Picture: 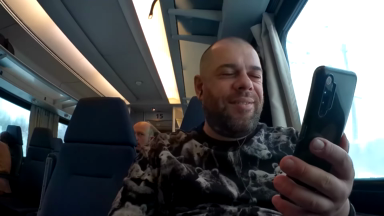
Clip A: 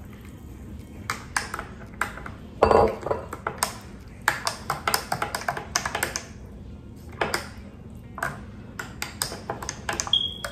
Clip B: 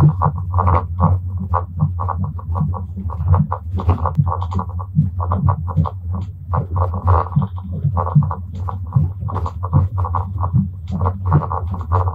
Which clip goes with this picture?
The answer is B